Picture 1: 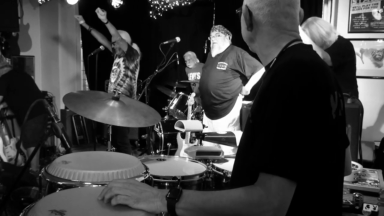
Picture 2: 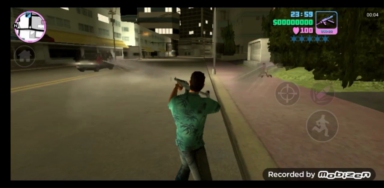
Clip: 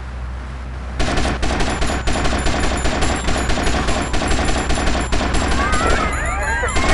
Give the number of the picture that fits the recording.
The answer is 2